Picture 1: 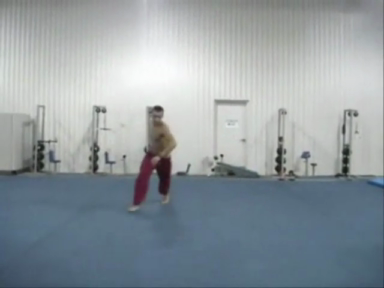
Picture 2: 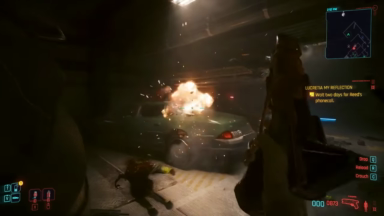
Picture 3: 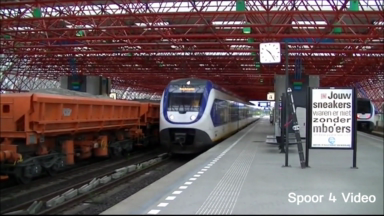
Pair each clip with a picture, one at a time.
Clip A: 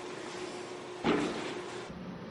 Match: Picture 1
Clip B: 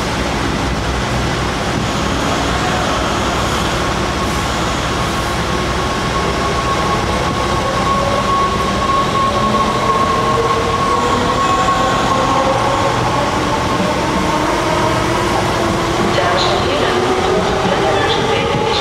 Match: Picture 3